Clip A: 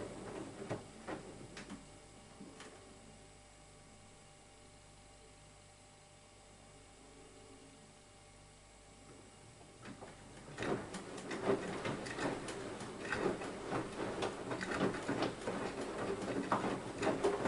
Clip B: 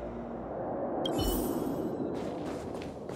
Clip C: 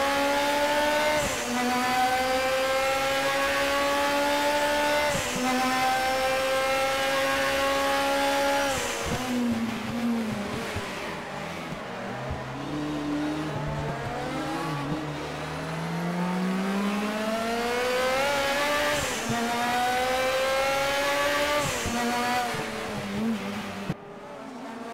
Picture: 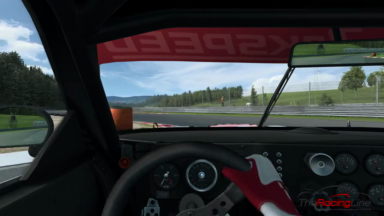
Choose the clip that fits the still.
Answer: C